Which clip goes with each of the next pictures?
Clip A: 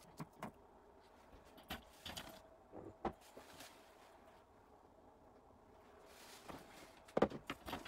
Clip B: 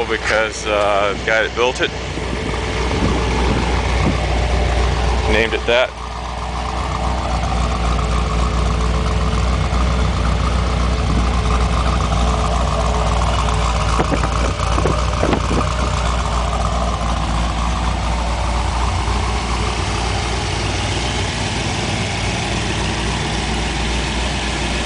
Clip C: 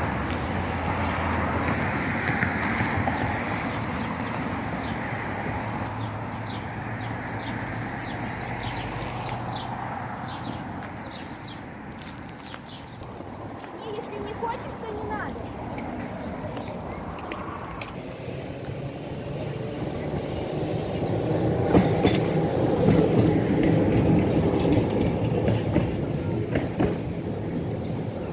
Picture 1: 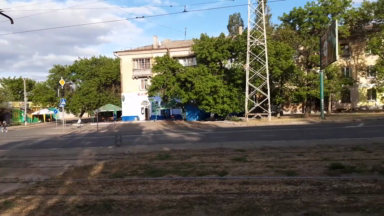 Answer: C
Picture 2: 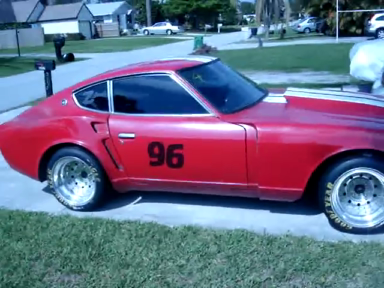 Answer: B